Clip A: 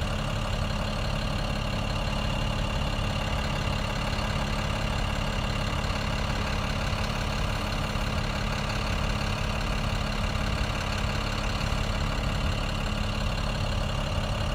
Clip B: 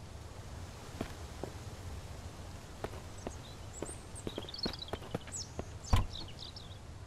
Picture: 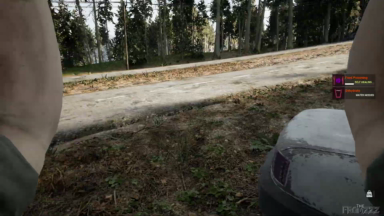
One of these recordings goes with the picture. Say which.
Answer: B